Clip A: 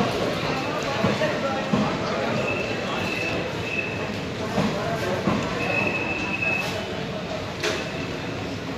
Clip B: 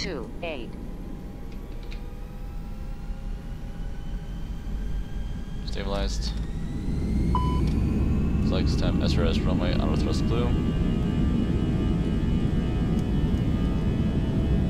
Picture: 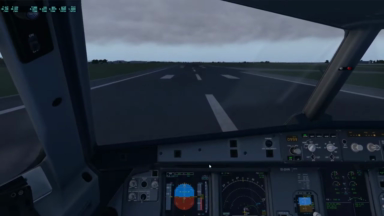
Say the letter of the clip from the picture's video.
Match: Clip B